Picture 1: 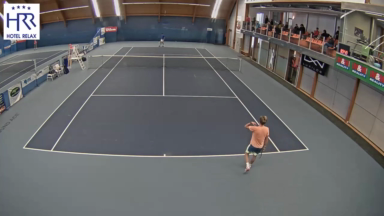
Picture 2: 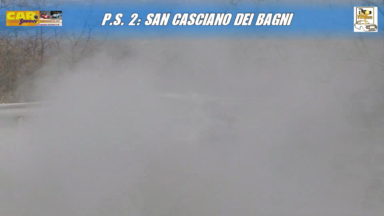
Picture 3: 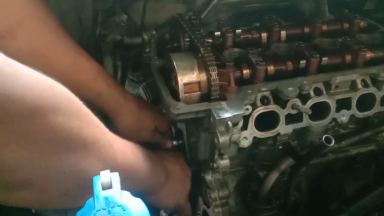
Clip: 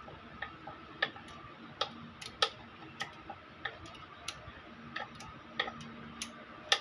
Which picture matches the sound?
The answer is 3